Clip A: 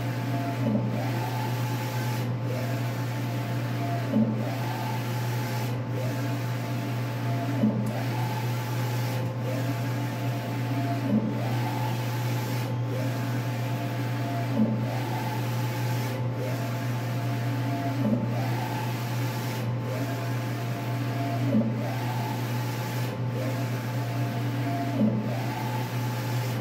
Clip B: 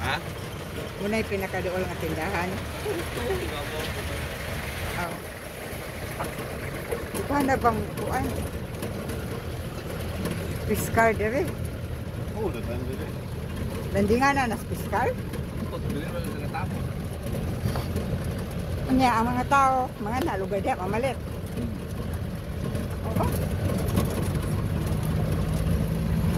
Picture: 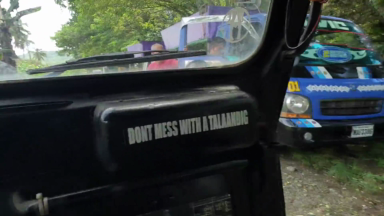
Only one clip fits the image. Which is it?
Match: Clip B